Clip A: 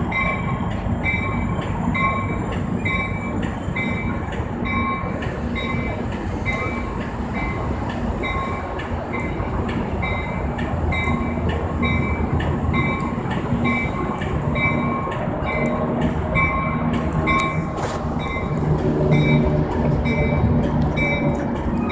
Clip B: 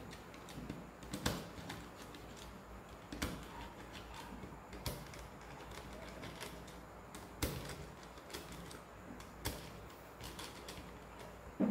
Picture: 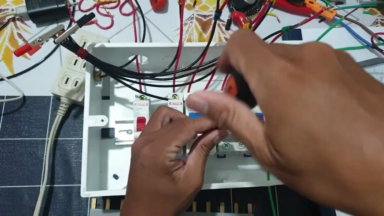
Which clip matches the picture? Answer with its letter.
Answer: B